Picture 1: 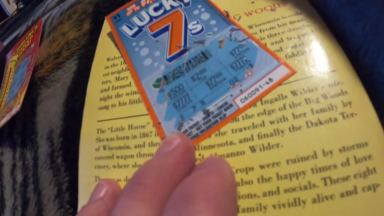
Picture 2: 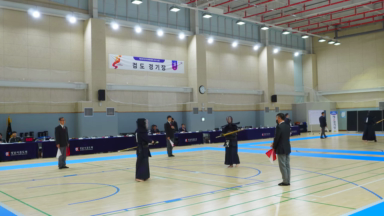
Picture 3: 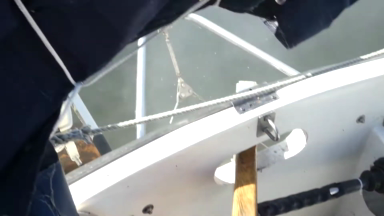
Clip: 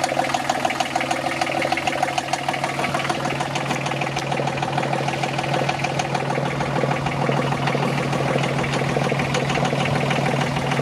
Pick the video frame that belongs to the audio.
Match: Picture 3